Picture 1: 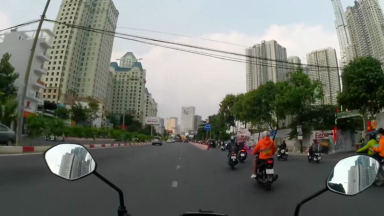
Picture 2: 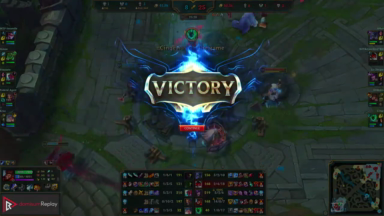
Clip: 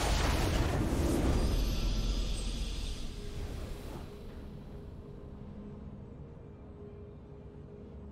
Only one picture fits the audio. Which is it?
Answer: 2